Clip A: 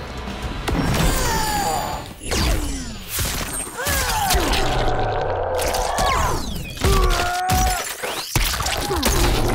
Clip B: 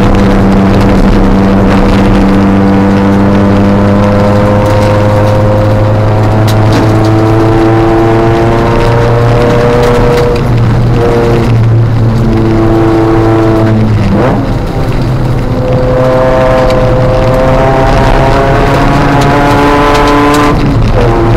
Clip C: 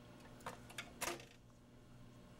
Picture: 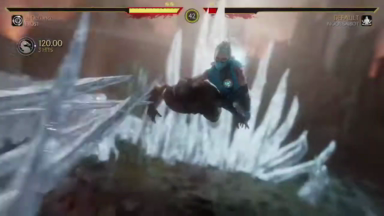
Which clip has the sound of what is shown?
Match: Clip A